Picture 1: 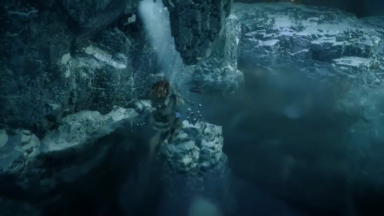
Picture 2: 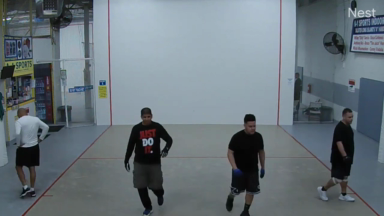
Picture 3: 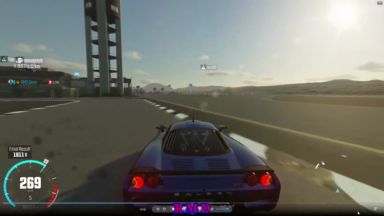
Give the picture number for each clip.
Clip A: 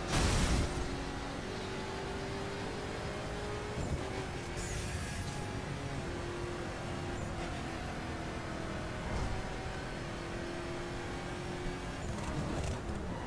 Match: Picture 3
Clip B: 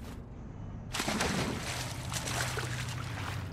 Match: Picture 1